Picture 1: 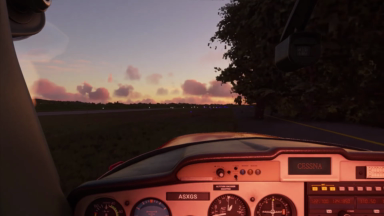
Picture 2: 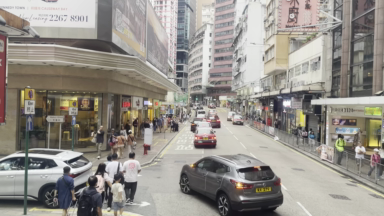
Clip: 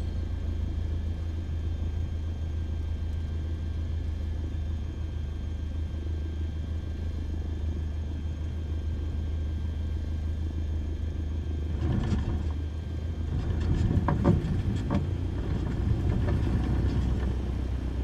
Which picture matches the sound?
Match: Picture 1